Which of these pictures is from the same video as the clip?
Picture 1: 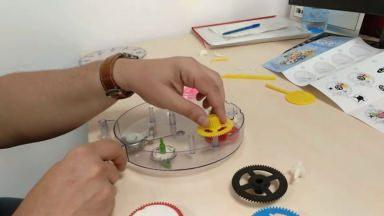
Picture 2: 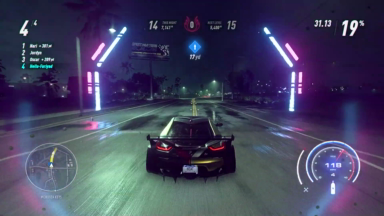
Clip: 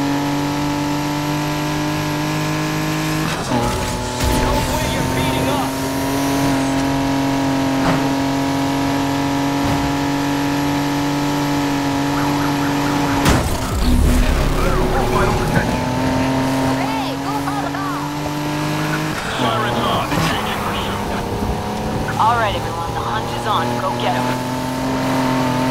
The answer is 2